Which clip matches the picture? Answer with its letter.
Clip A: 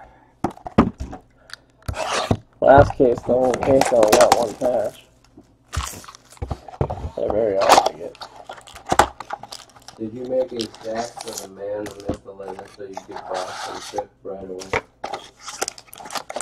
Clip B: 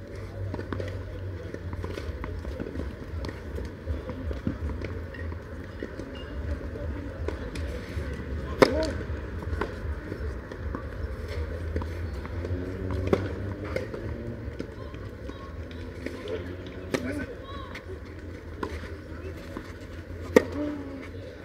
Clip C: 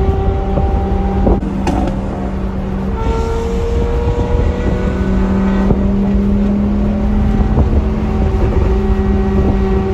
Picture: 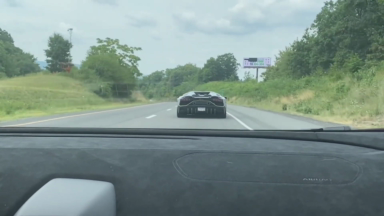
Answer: C